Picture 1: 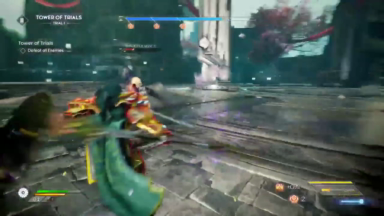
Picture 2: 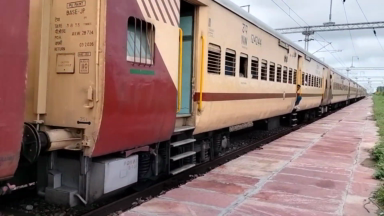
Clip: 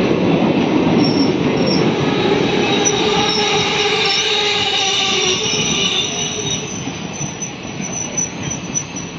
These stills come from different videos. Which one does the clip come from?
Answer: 2